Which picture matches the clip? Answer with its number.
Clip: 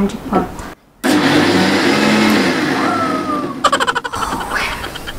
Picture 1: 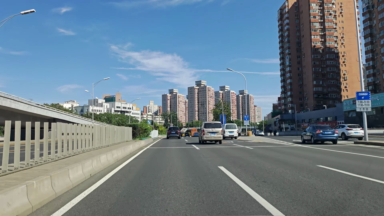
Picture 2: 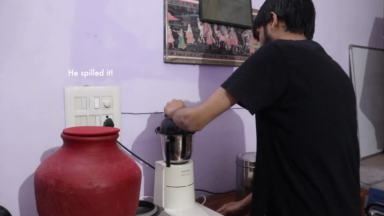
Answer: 2